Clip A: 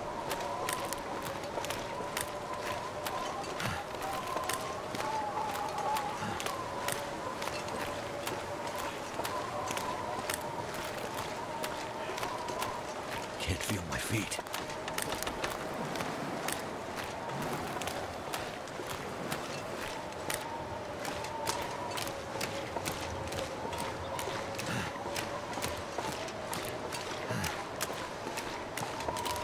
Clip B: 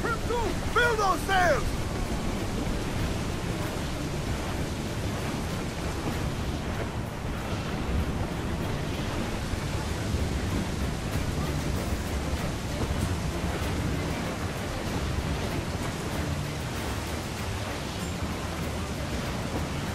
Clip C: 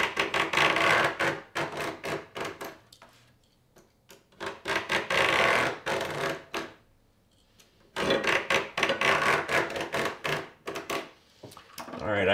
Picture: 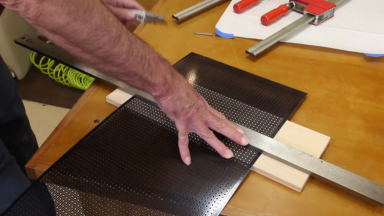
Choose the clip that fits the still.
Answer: C